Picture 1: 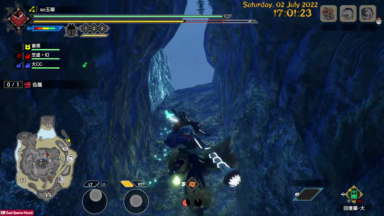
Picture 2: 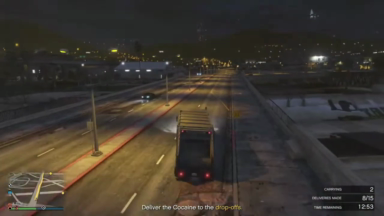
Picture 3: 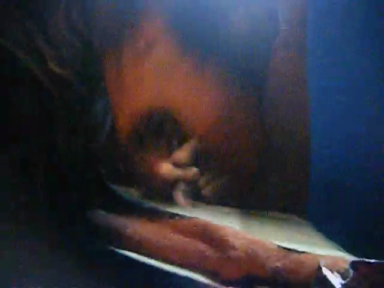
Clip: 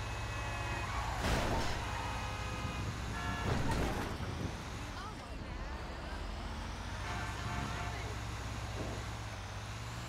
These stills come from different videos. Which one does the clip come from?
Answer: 2